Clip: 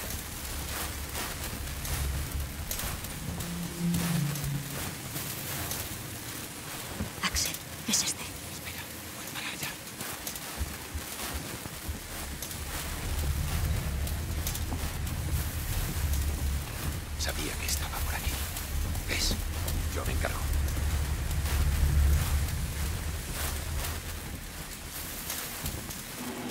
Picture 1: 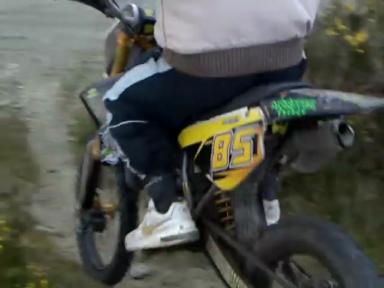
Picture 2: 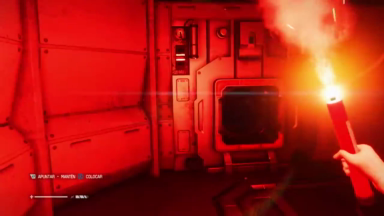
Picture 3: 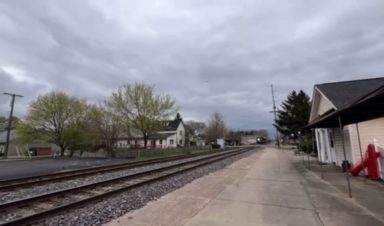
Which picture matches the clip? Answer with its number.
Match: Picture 2